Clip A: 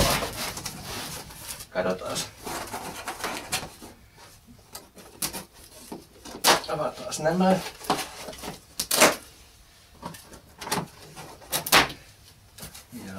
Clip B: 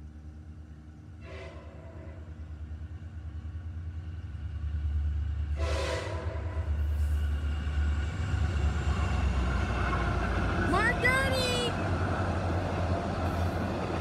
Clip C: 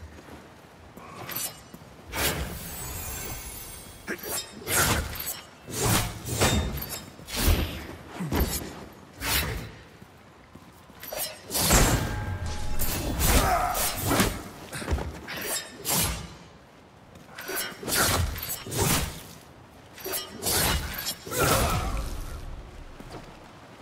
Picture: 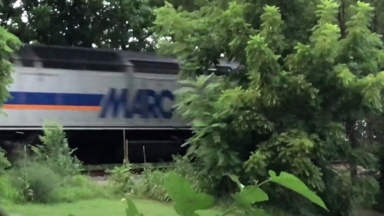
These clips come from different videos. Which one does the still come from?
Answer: B